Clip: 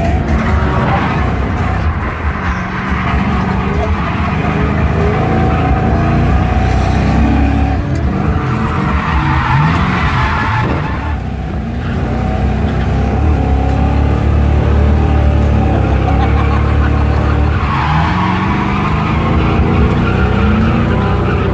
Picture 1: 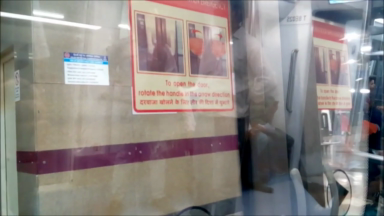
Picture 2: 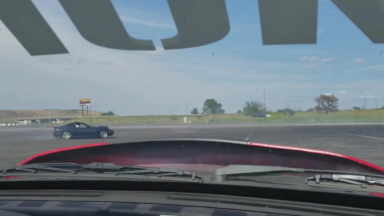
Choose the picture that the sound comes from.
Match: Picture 2